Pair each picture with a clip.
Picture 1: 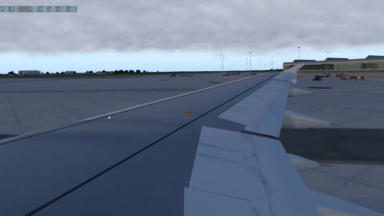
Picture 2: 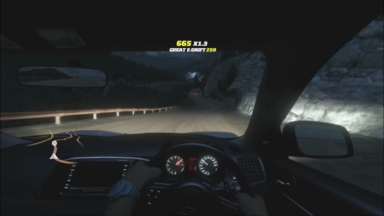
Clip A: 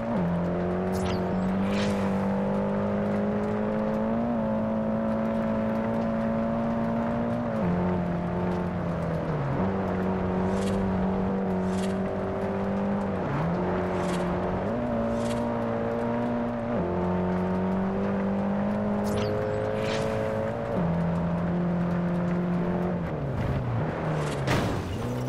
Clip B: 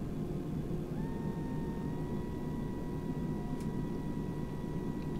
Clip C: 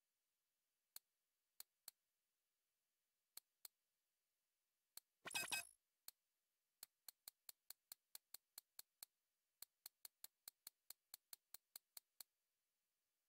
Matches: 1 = B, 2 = A